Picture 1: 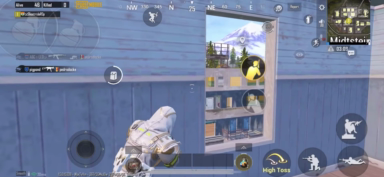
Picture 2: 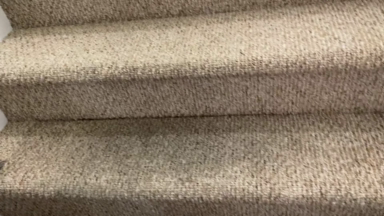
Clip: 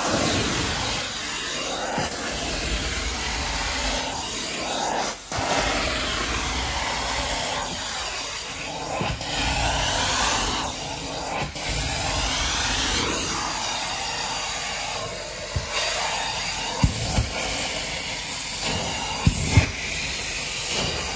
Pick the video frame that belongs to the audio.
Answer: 2